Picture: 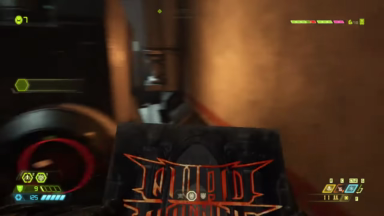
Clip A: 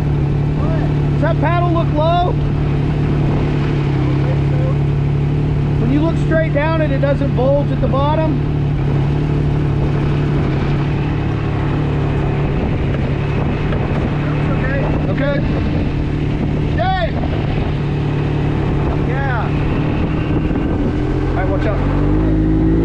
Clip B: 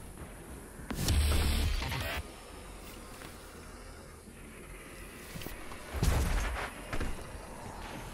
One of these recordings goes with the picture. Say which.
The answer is B